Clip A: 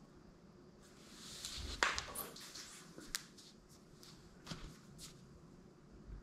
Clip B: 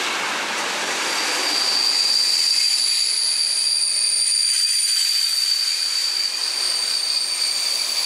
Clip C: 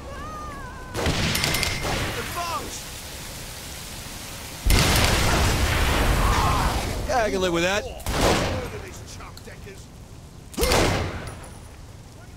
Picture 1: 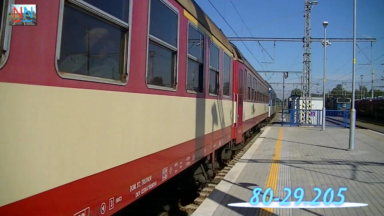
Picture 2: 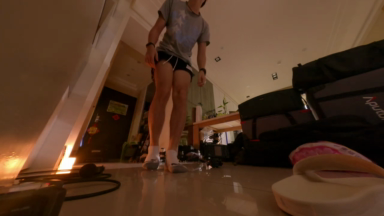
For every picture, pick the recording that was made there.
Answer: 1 B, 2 A